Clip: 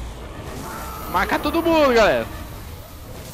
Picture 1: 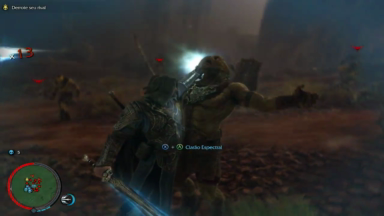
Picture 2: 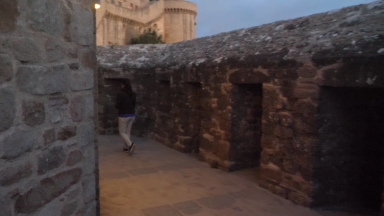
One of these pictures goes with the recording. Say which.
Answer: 1